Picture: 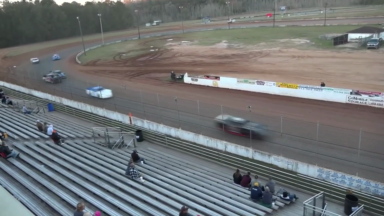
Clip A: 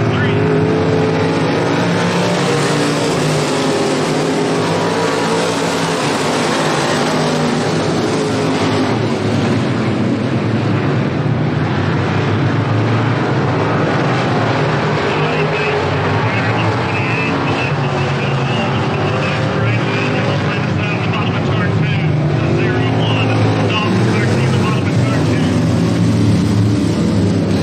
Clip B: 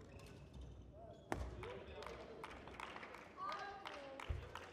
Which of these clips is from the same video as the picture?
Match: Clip A